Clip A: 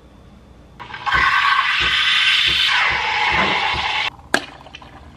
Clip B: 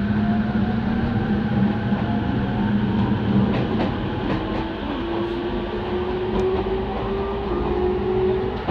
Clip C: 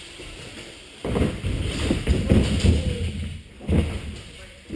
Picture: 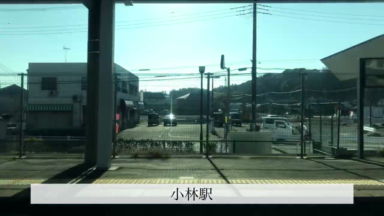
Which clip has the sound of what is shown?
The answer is B